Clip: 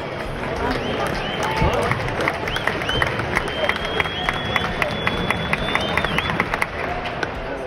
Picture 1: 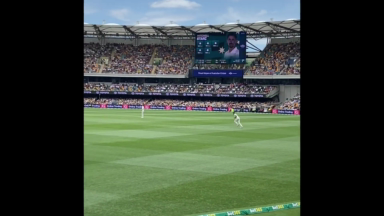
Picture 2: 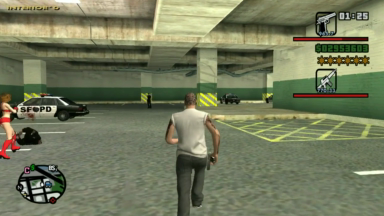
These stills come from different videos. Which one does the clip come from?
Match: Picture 1